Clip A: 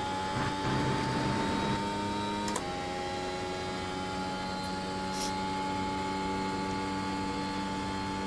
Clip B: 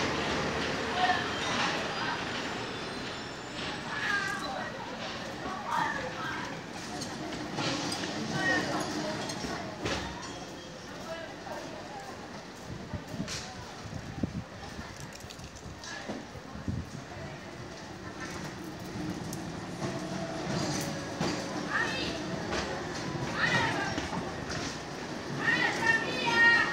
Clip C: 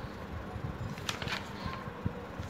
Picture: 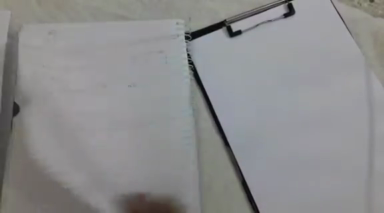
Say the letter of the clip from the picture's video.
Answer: C